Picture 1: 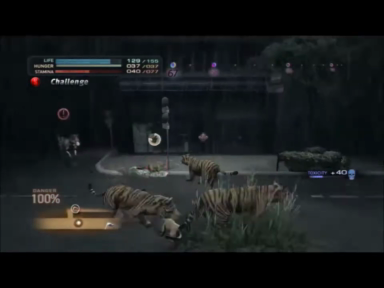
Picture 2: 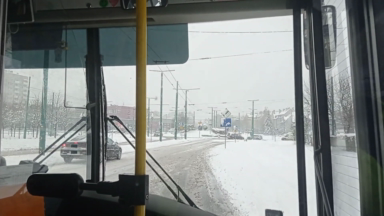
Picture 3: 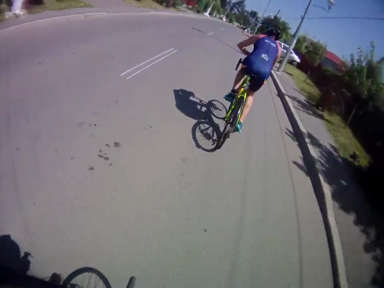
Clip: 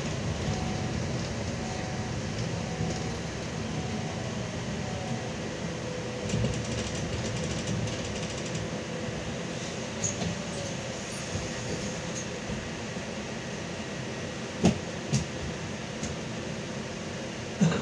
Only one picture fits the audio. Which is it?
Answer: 2